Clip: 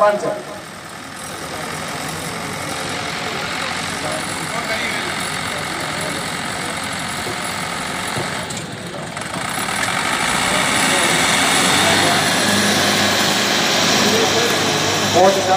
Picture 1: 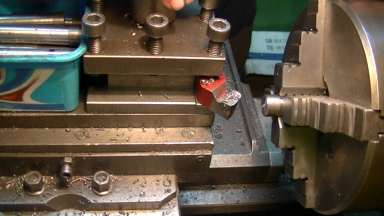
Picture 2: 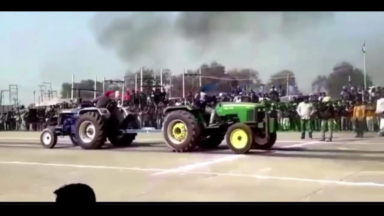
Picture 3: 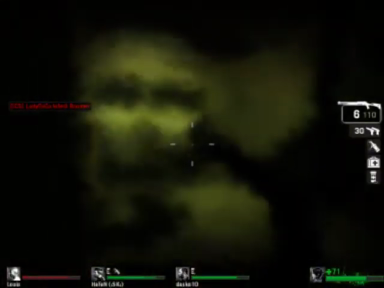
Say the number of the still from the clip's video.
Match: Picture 2